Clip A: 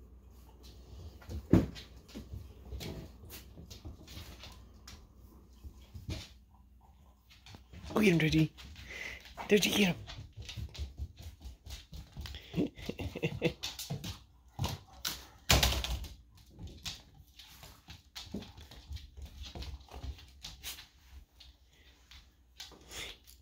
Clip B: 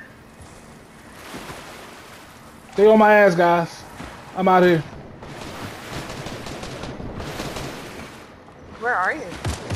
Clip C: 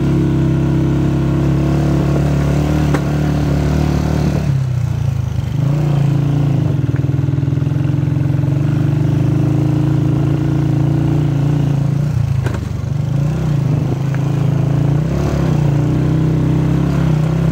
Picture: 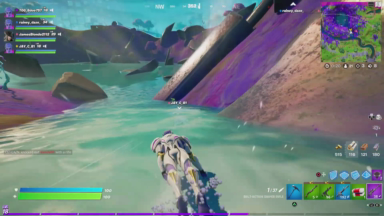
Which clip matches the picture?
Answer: B